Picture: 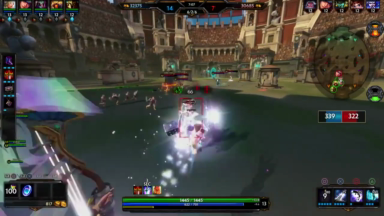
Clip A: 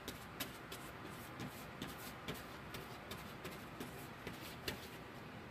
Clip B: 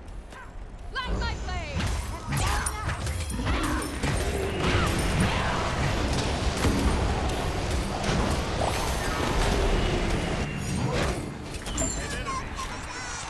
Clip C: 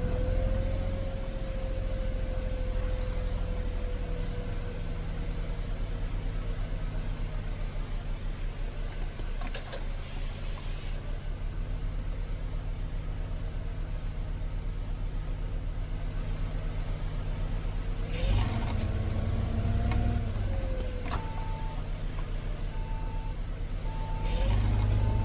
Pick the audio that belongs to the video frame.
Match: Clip B